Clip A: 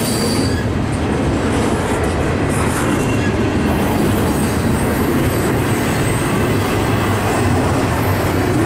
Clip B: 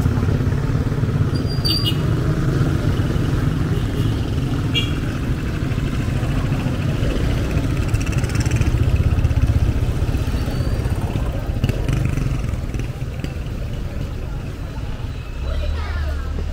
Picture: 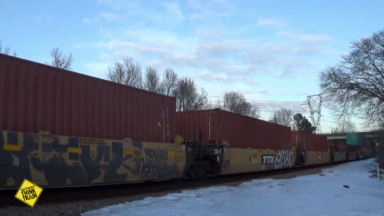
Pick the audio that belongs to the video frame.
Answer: A